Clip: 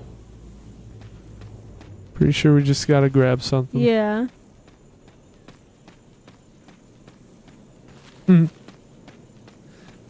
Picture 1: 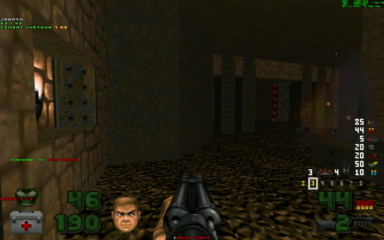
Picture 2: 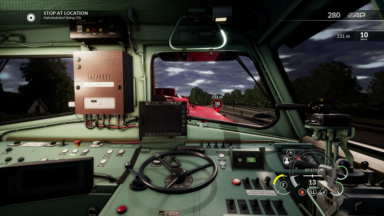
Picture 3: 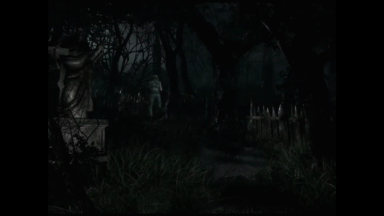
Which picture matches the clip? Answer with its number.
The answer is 3